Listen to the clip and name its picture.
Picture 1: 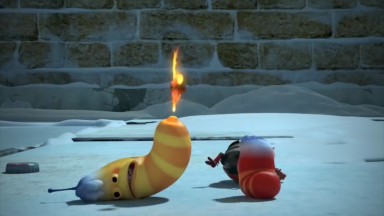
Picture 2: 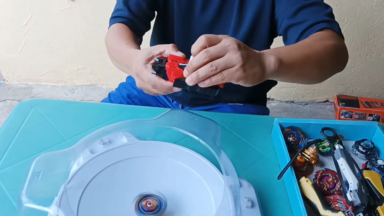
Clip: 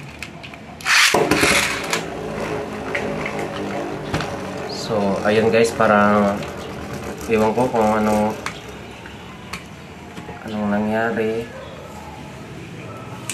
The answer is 2